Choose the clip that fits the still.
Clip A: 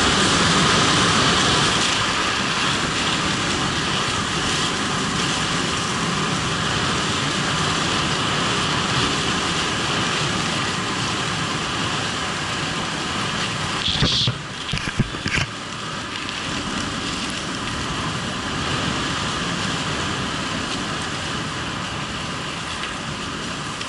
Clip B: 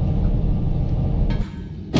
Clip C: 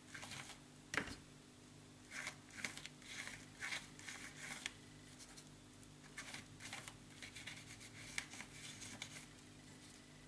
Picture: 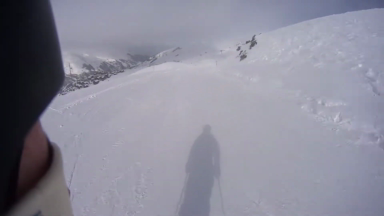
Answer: A